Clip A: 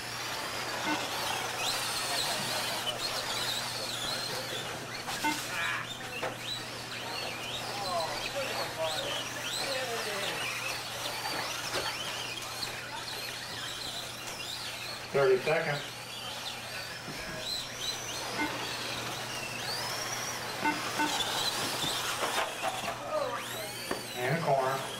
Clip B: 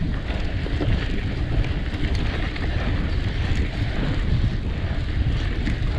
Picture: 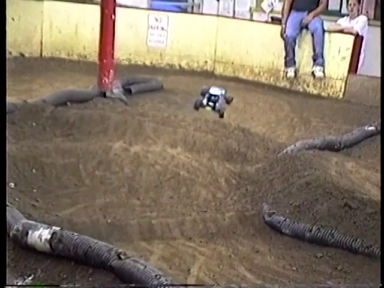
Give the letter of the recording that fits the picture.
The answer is A